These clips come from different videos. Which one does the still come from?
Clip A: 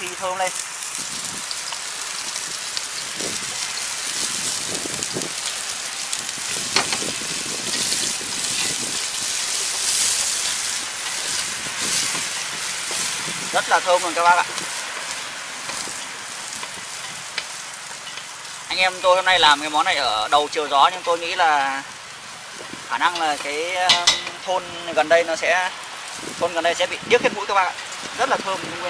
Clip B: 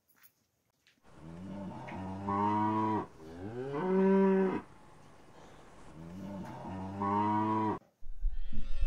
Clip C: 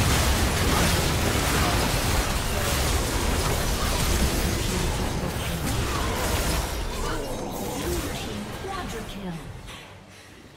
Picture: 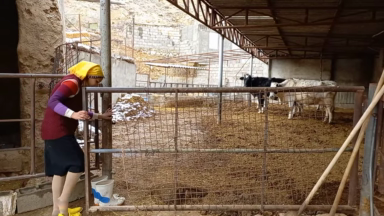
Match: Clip B